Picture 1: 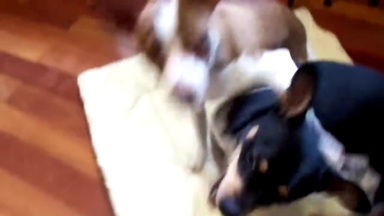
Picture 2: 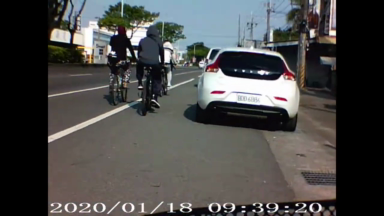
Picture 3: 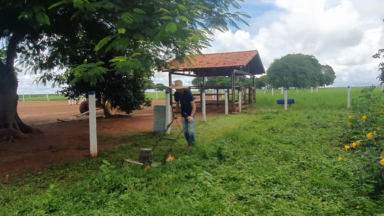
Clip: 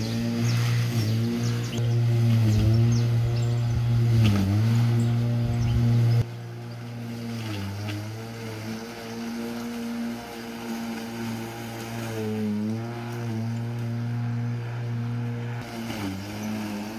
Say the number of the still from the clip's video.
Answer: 3